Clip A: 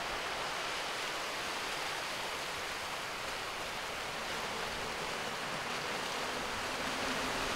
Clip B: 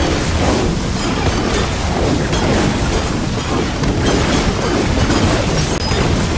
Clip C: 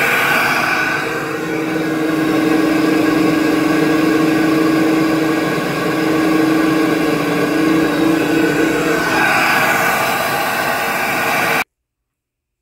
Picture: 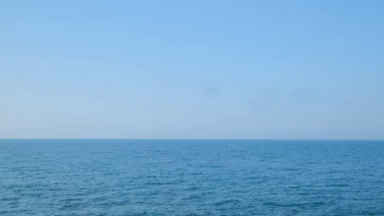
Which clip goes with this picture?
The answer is A